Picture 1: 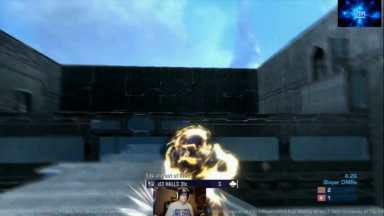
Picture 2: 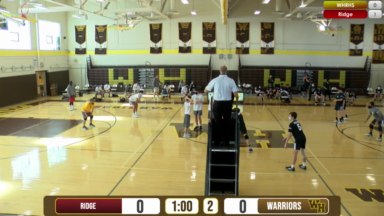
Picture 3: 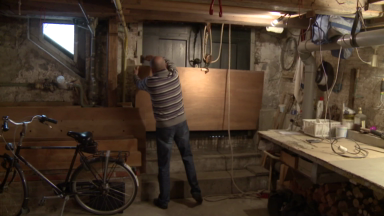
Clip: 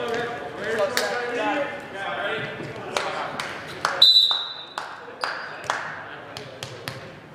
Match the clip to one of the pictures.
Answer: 2